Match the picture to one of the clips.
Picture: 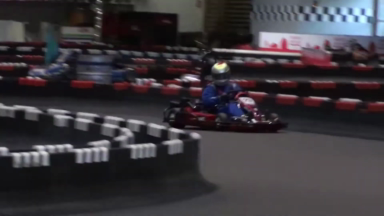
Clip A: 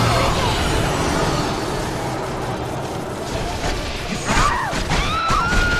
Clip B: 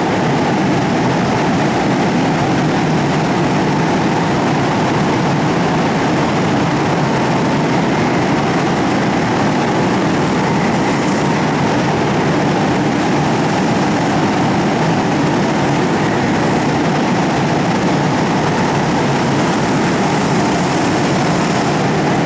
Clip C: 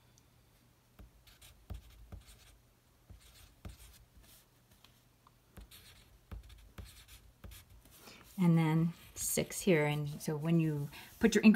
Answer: B